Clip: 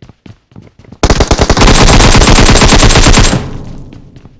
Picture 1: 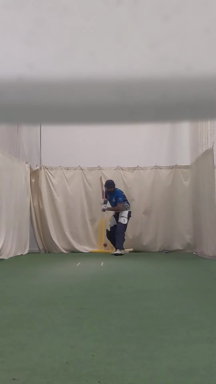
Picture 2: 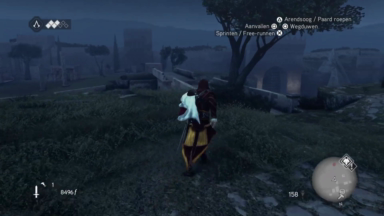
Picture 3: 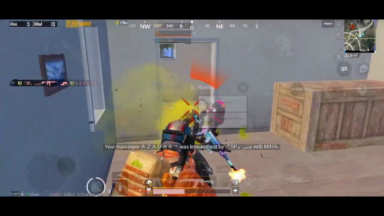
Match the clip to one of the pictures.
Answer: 3